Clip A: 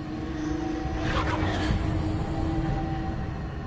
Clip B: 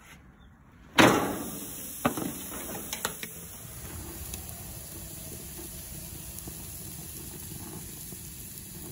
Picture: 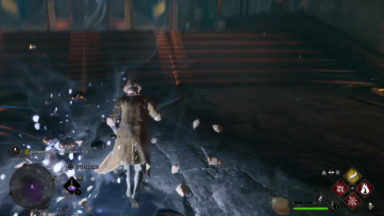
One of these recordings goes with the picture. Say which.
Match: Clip A